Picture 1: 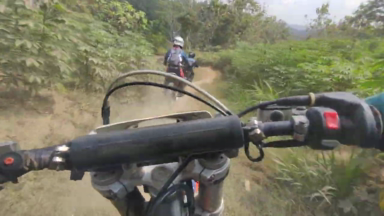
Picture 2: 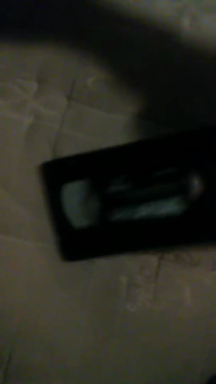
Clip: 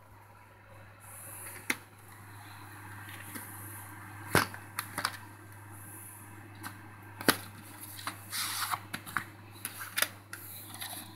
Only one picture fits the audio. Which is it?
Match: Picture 2